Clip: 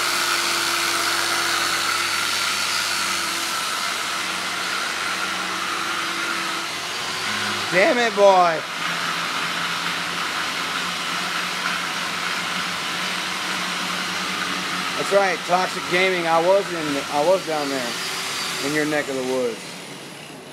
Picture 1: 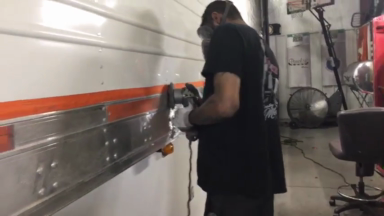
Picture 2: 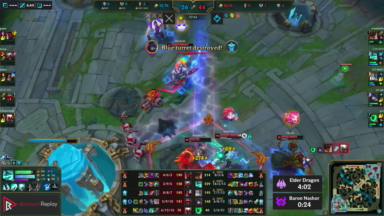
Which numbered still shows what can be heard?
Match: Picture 1